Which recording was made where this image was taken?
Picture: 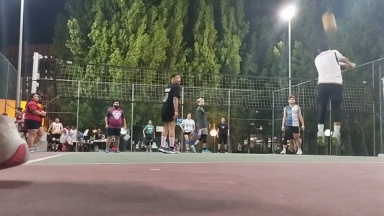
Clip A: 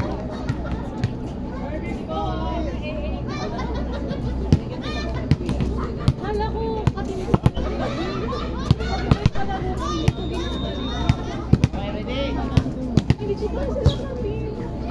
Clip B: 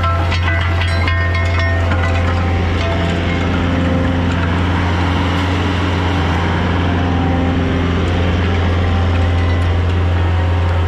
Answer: A